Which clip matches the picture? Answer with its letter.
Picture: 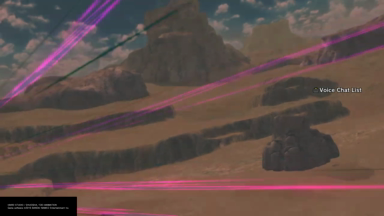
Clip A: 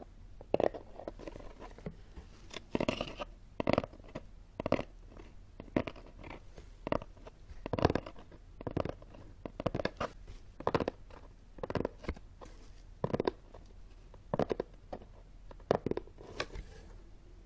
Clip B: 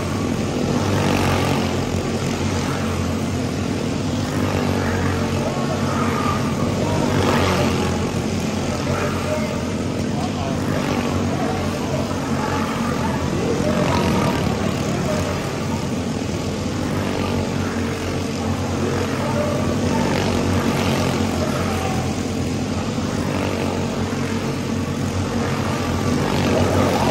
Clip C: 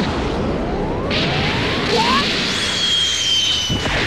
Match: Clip C